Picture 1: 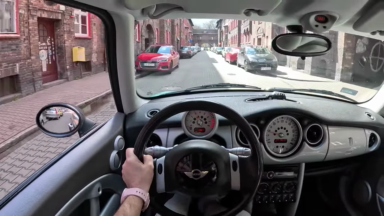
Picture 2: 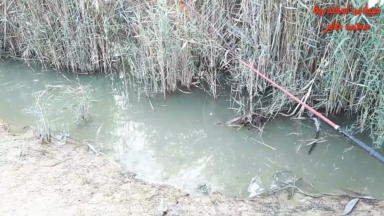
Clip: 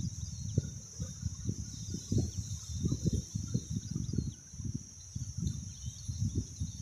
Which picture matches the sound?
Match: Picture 2